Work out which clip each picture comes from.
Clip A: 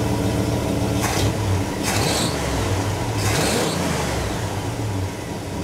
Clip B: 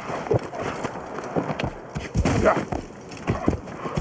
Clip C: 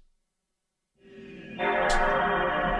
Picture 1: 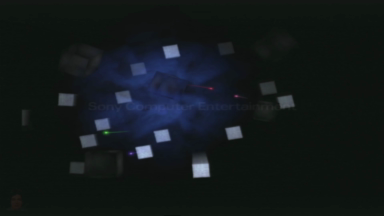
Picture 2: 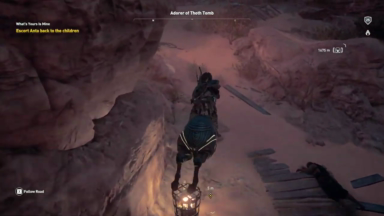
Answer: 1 C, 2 B